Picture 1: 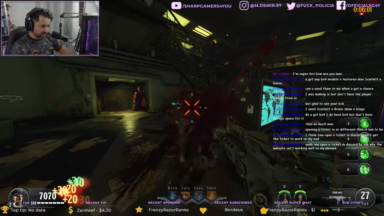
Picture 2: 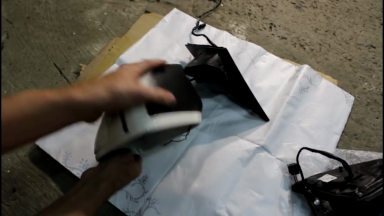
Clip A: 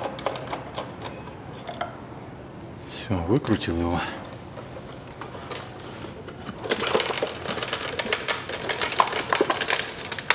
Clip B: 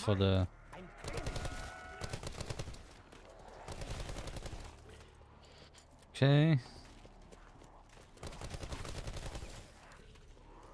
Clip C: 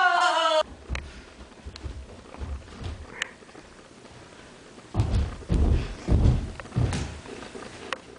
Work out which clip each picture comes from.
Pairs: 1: B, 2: A